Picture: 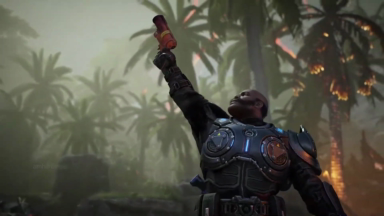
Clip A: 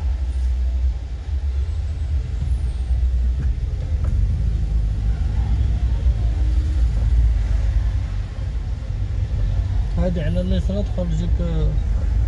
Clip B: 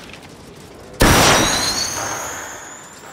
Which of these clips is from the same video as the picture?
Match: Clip B